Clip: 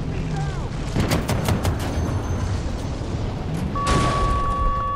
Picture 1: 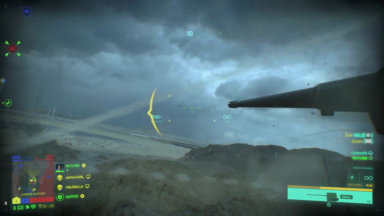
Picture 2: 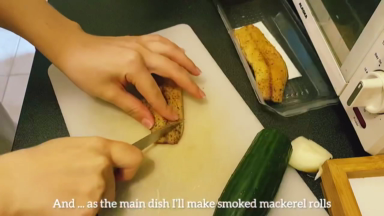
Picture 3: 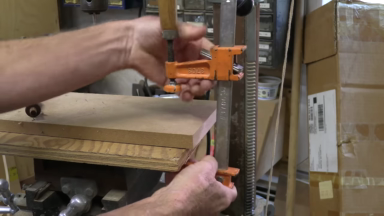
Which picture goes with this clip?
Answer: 1